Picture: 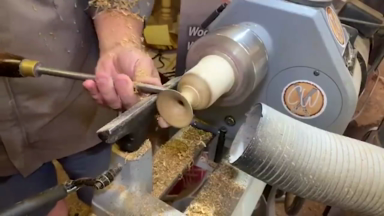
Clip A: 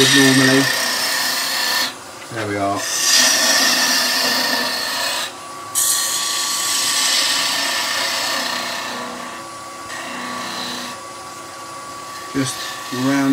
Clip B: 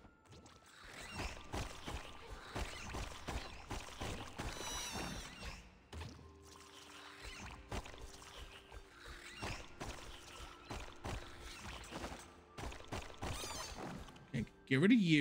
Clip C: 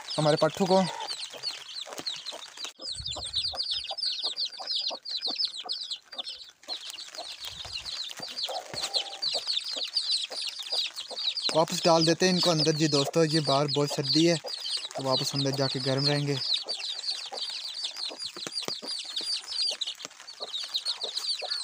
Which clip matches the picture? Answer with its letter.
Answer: A